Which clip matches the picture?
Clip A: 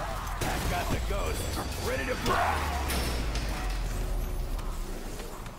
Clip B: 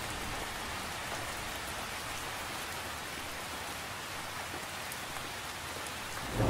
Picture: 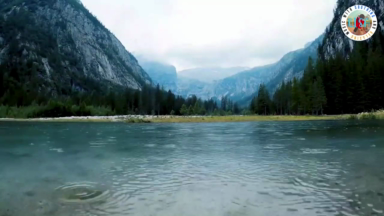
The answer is B